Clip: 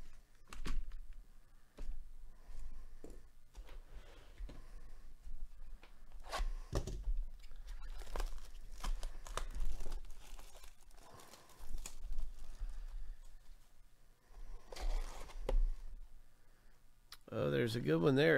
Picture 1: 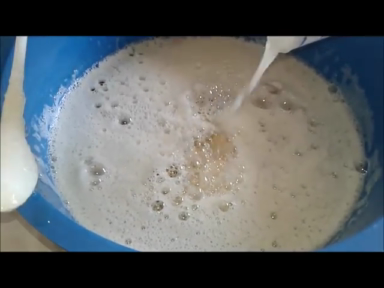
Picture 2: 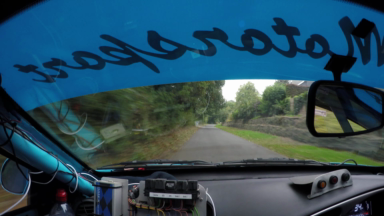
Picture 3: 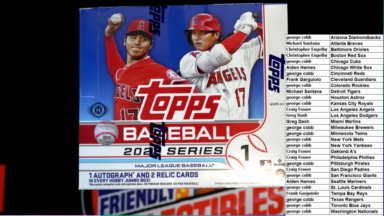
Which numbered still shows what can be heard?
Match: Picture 3